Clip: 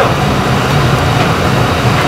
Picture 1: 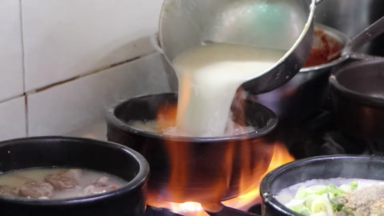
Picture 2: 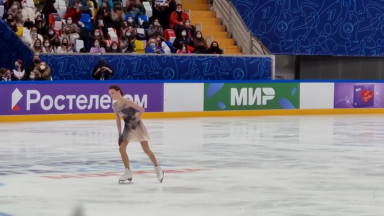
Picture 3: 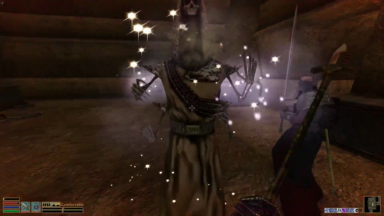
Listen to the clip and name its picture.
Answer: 1